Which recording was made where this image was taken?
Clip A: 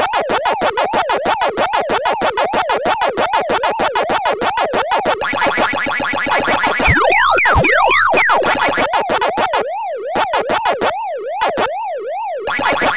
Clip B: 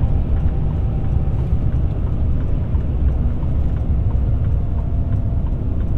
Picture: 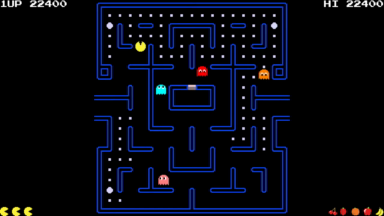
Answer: A